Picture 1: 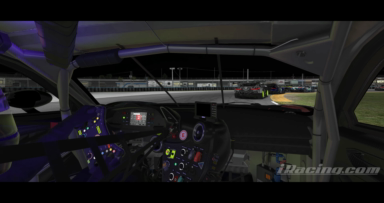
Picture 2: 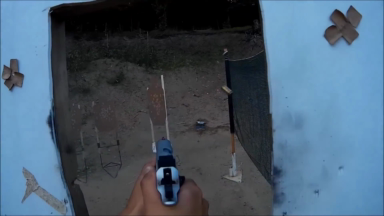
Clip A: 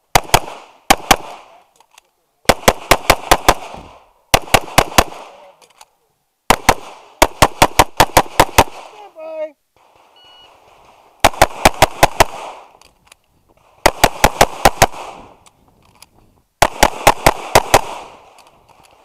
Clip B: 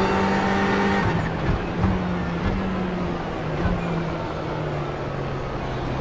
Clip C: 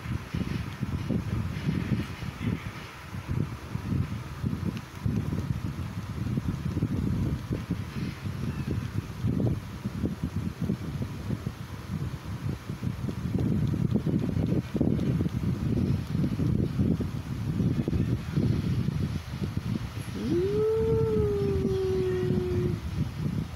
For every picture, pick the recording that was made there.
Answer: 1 B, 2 A